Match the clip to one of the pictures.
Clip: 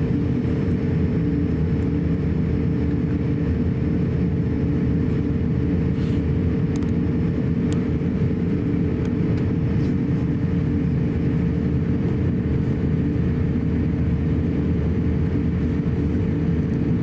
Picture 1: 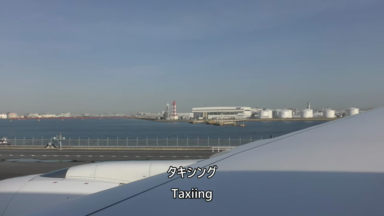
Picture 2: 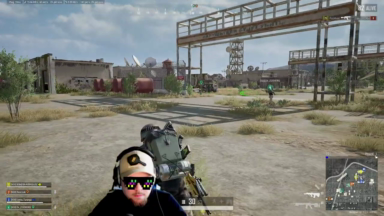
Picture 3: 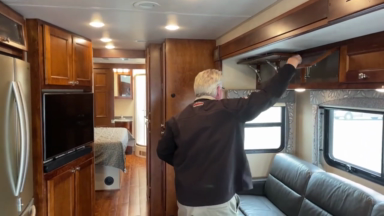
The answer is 1